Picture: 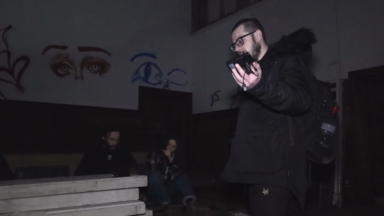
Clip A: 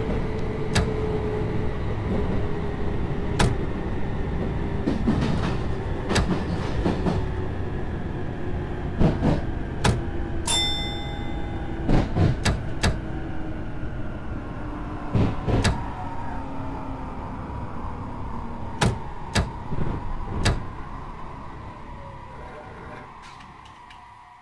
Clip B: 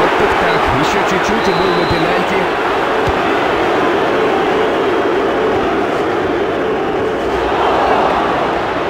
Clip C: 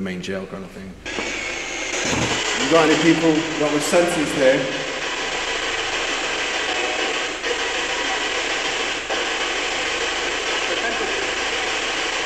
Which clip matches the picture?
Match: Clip C